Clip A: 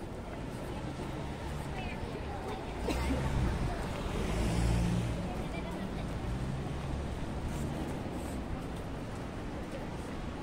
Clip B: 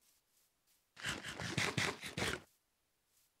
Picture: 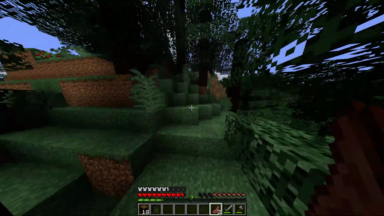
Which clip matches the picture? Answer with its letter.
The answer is B